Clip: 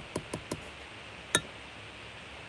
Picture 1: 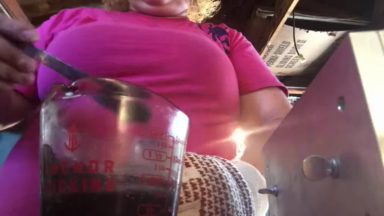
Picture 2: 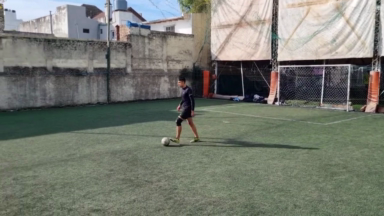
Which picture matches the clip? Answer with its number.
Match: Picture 1